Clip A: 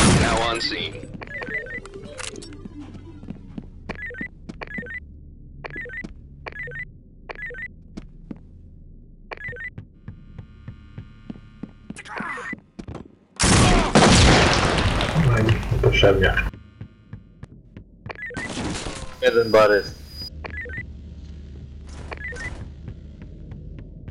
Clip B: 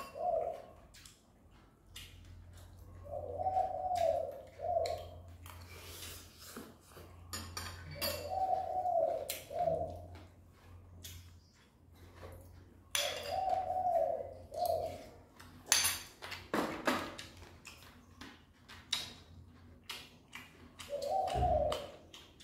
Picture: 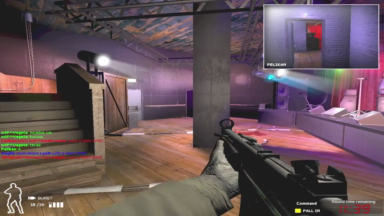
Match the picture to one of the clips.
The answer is A